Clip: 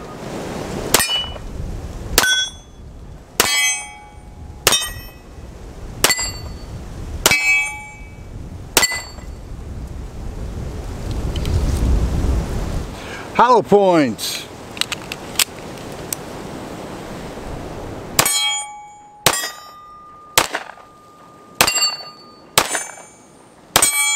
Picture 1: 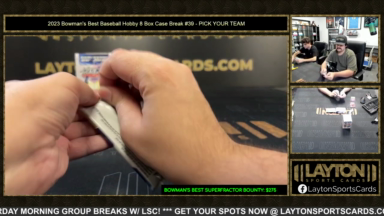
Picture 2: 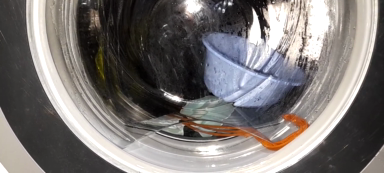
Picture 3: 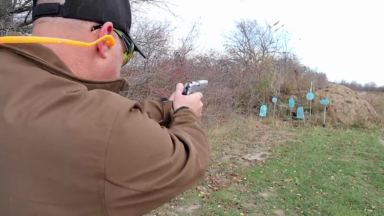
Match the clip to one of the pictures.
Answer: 3